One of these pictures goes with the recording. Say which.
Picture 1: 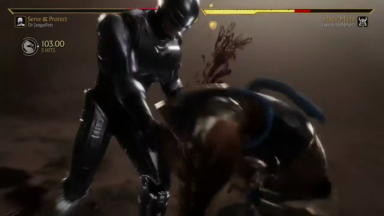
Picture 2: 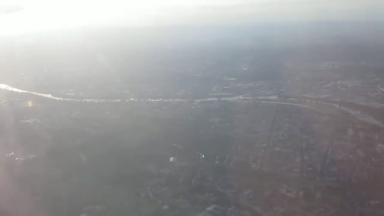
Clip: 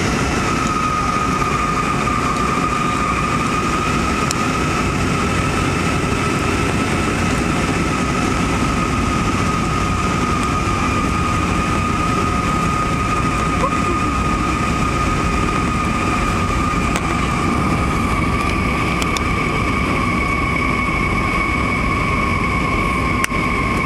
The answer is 2